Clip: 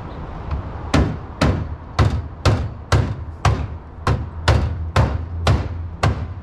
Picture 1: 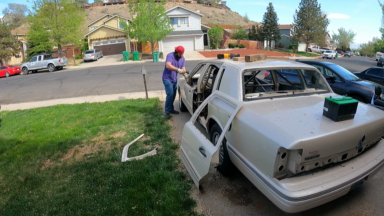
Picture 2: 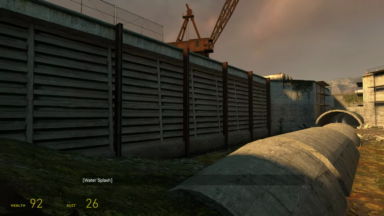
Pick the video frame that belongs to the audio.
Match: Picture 1